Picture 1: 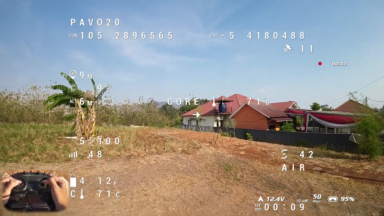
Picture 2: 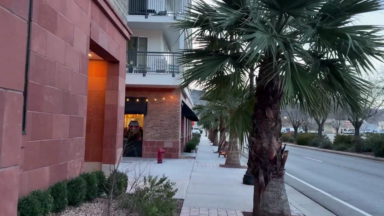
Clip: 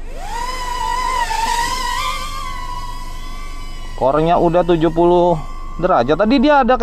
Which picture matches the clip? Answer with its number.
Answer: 1